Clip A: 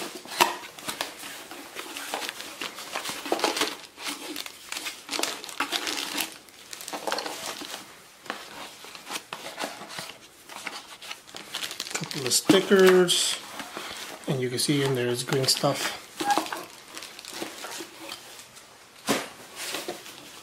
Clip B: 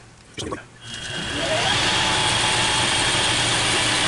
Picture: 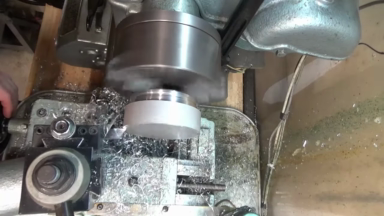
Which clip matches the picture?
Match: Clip B